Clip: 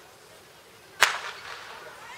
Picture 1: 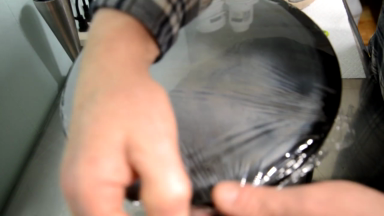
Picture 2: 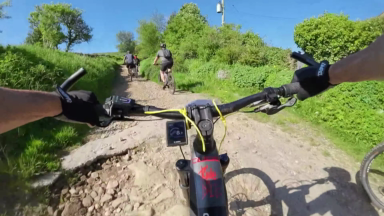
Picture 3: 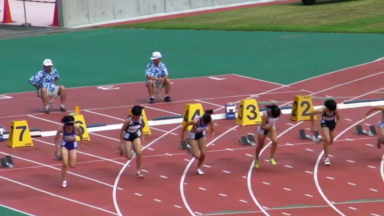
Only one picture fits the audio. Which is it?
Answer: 3